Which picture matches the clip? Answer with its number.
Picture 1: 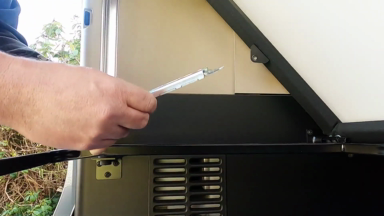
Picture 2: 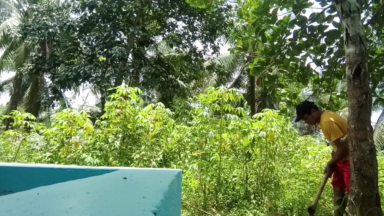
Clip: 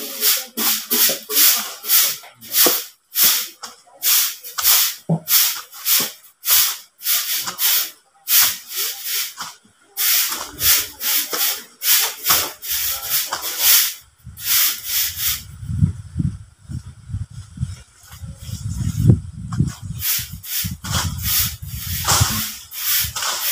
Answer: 2